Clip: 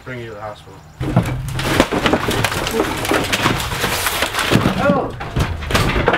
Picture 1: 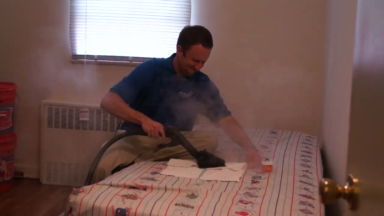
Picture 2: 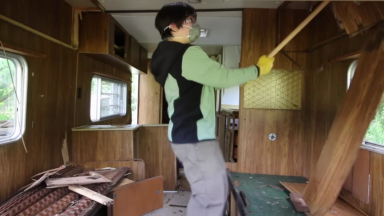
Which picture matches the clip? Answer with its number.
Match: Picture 2